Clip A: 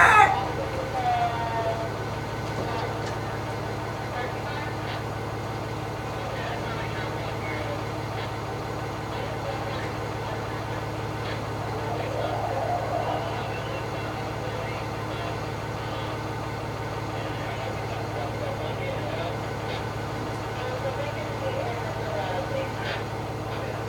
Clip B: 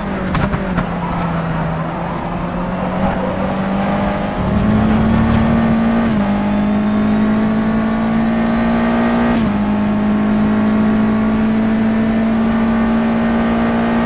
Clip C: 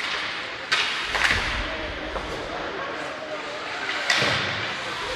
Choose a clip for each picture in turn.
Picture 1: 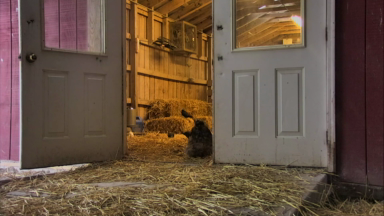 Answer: A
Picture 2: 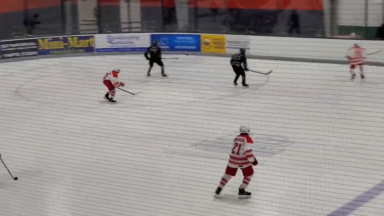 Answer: C